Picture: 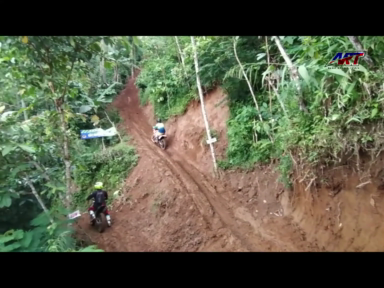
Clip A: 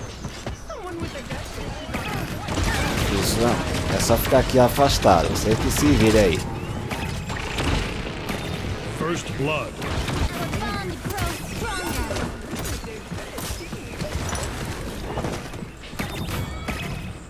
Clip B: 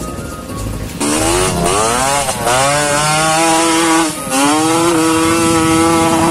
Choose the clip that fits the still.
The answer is B